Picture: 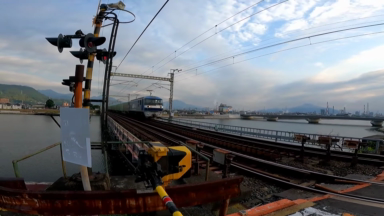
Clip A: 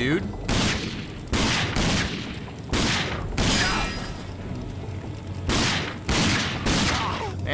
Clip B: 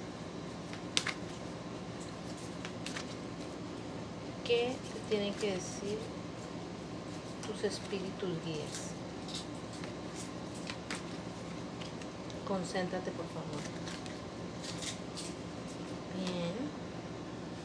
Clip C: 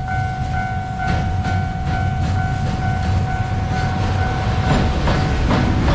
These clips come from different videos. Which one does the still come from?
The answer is C